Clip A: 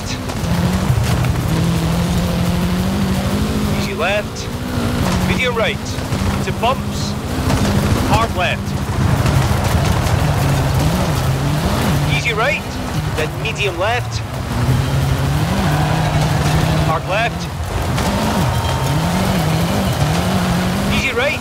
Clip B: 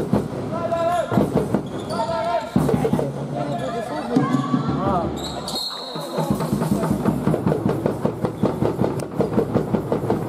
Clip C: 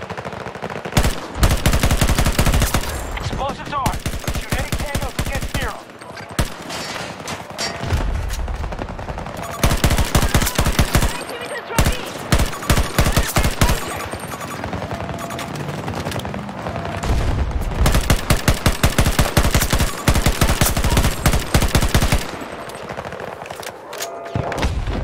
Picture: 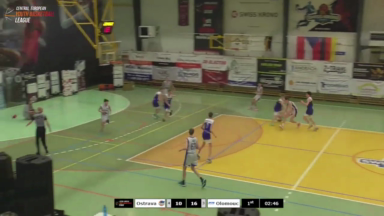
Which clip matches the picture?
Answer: B